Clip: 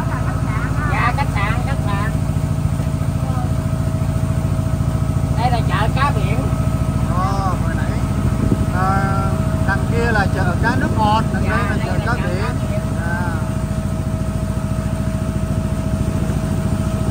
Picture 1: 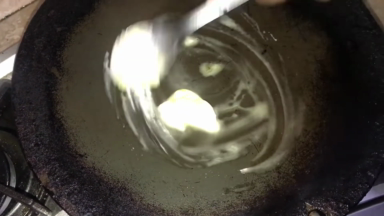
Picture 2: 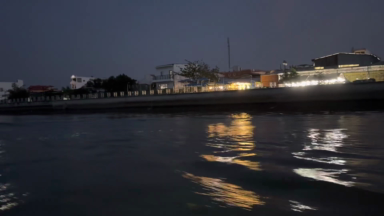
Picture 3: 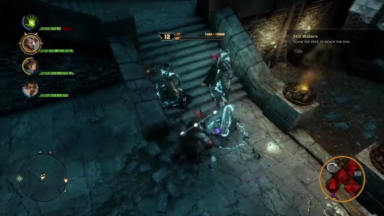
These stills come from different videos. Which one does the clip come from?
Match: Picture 2